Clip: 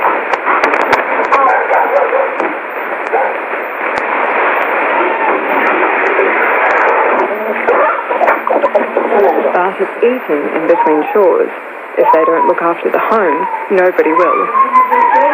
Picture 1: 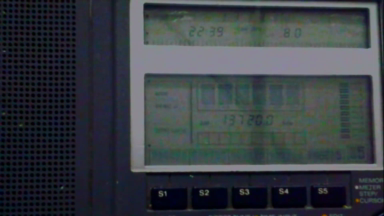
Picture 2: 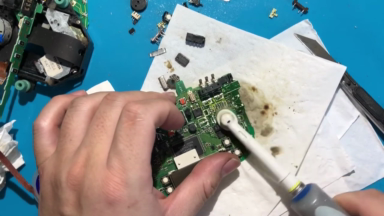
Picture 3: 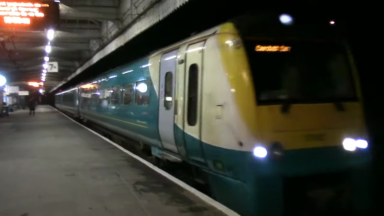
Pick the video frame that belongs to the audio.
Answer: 1